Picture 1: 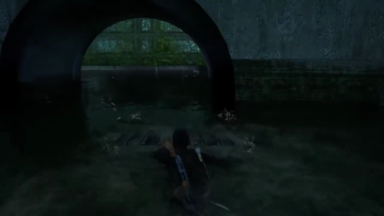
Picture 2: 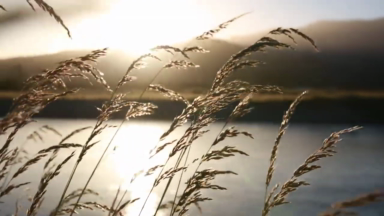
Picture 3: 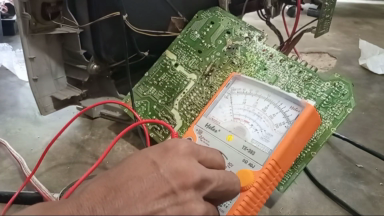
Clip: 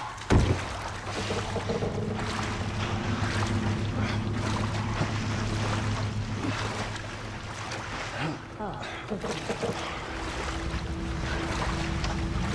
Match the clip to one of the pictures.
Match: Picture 1